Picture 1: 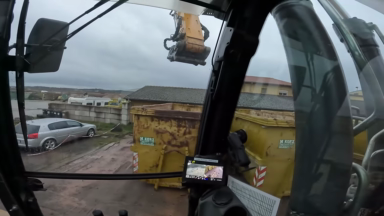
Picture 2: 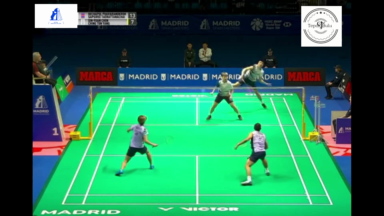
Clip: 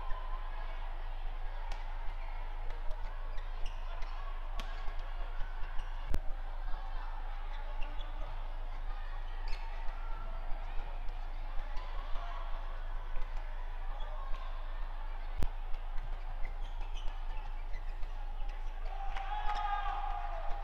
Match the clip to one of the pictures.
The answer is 2